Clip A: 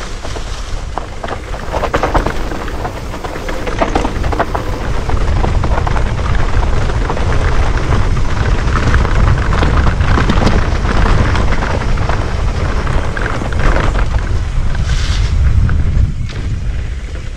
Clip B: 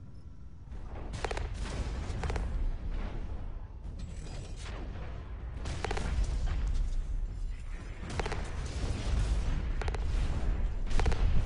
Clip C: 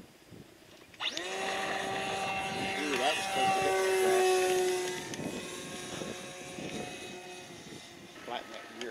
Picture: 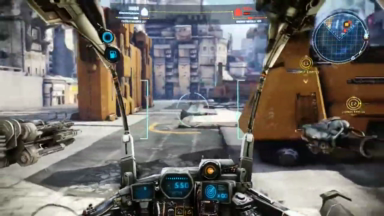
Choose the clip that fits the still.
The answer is B